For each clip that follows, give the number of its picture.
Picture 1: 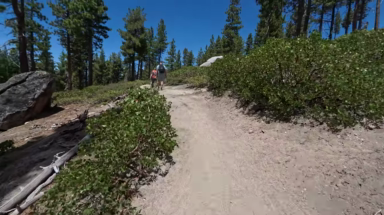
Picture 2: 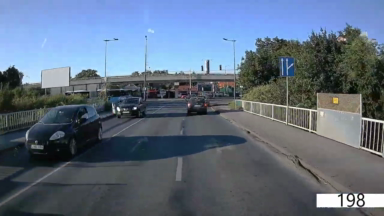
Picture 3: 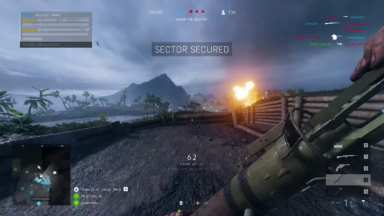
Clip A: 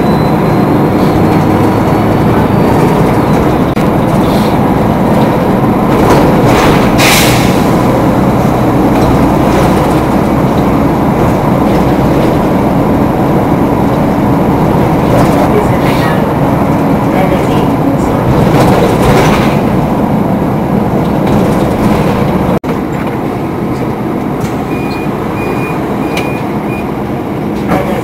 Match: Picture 2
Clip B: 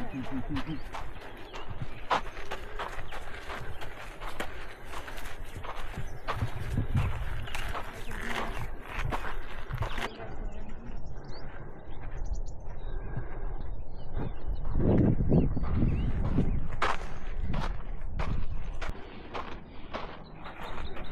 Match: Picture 1